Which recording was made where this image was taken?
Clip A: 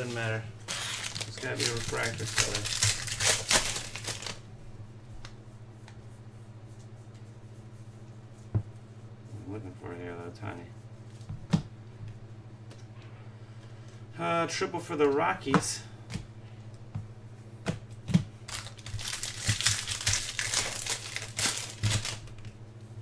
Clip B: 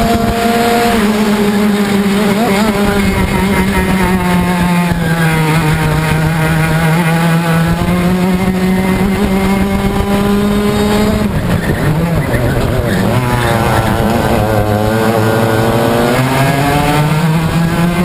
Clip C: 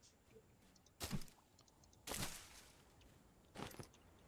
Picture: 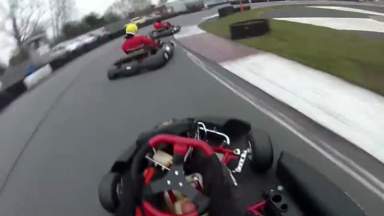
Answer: B